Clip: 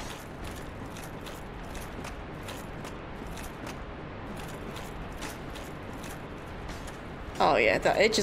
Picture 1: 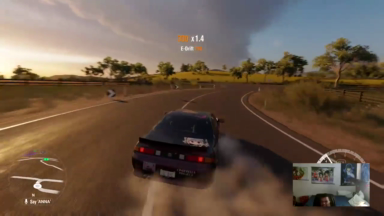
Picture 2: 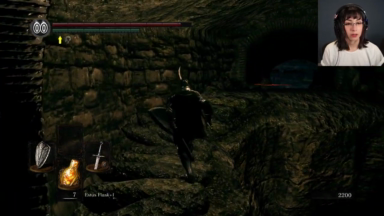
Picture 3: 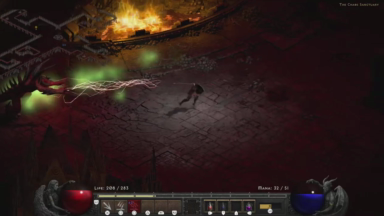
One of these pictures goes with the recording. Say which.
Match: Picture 2